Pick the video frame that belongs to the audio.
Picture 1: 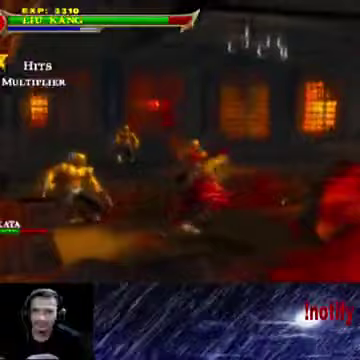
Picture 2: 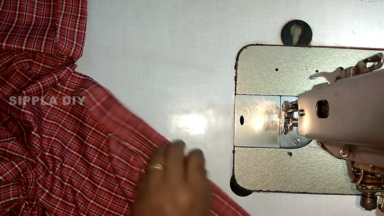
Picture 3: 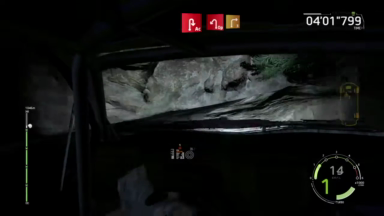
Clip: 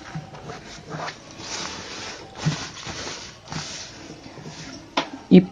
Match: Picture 2